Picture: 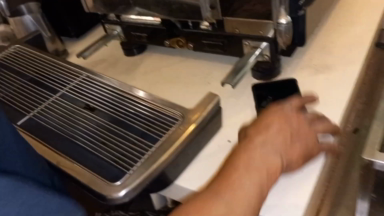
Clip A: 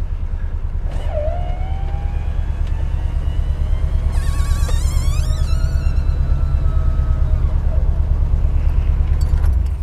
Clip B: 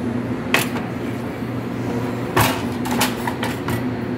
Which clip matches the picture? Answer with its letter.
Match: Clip B